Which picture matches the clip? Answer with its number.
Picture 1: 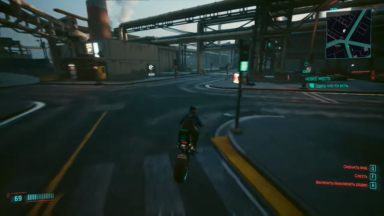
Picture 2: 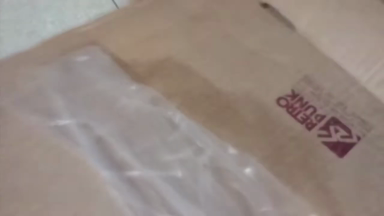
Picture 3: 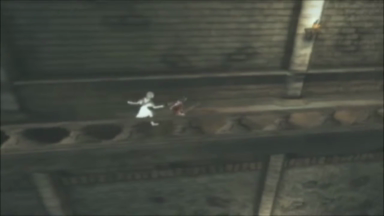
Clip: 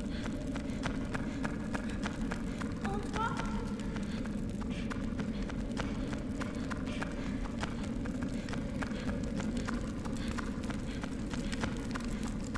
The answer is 3